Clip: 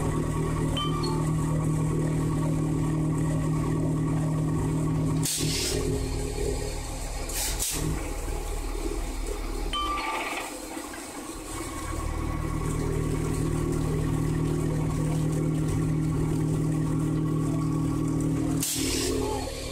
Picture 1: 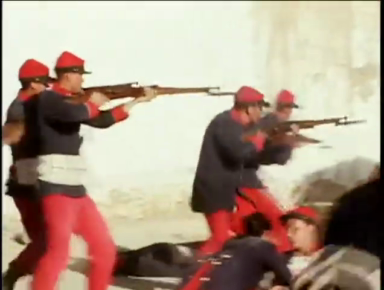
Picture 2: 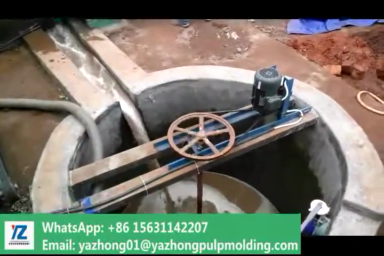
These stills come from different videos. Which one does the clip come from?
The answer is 2